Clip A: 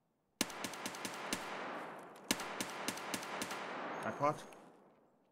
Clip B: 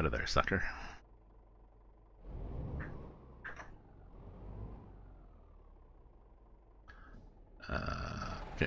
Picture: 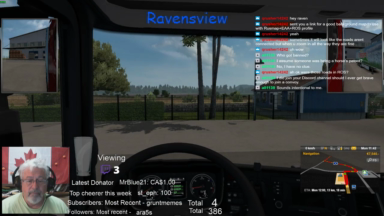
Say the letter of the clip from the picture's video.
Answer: B